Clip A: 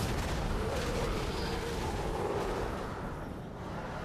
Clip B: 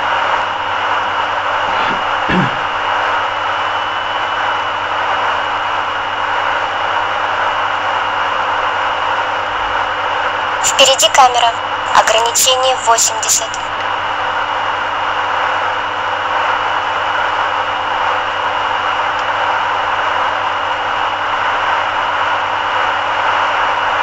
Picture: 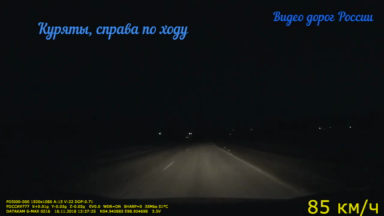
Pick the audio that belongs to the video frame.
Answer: B